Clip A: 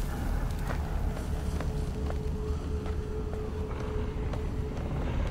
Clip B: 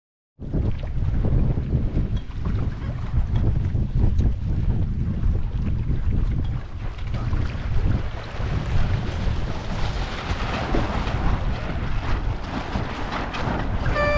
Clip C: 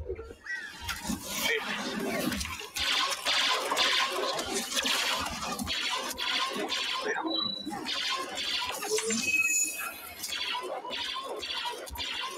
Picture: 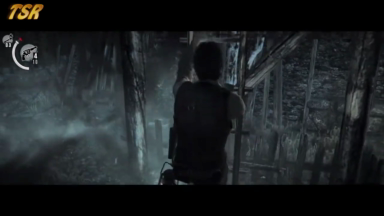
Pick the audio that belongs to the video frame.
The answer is A